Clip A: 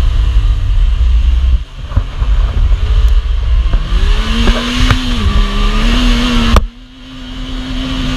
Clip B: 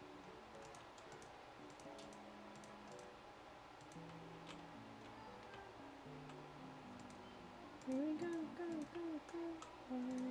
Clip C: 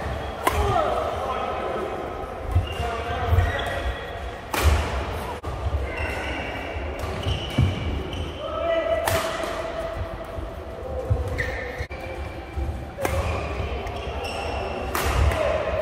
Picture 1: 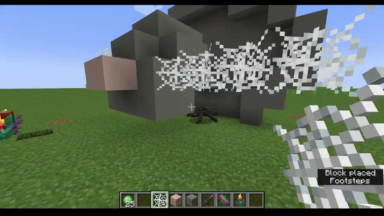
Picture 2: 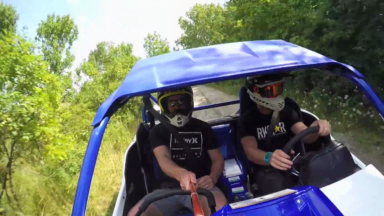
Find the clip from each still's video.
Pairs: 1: B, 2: A